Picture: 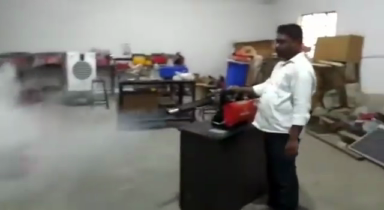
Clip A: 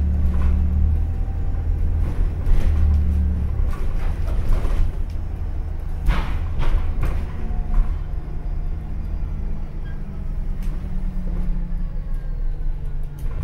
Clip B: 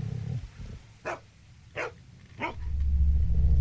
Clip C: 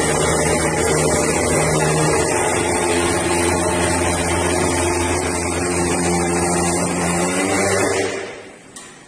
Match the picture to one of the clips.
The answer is C